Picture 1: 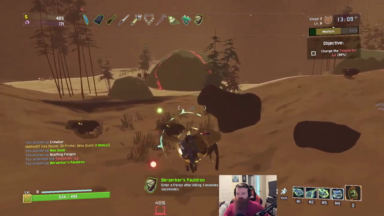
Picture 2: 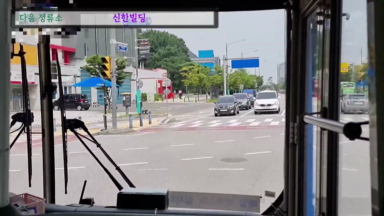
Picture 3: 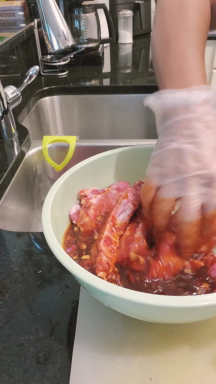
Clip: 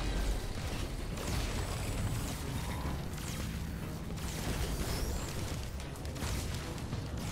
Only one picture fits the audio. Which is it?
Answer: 1